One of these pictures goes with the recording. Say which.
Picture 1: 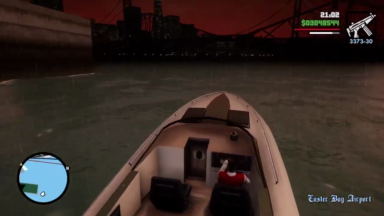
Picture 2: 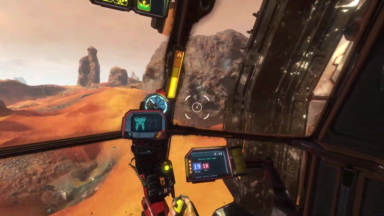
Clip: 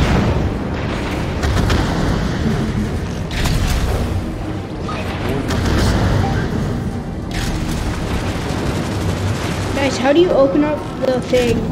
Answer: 2